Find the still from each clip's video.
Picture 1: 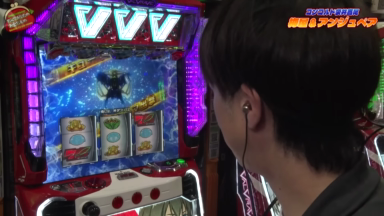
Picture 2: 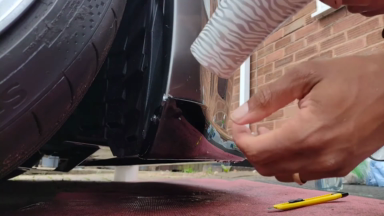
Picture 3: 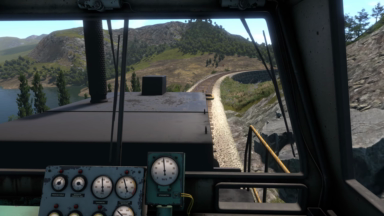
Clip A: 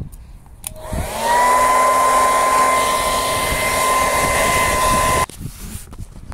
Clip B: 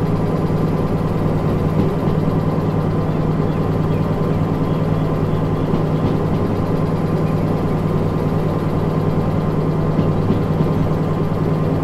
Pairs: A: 2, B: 3